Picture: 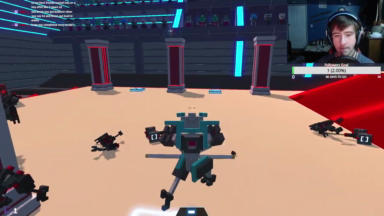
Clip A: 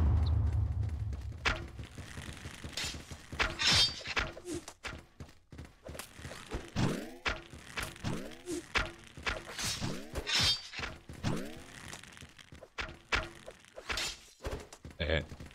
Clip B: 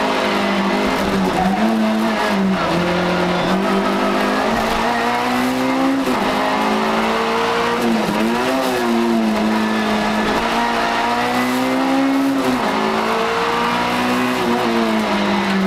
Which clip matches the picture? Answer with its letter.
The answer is A